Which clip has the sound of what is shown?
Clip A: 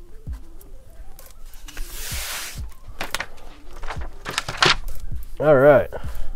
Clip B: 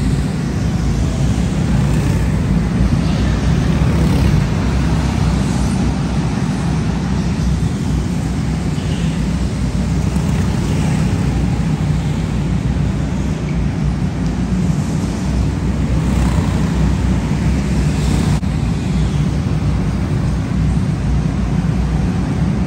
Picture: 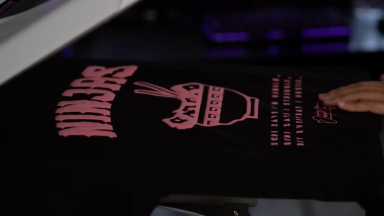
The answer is A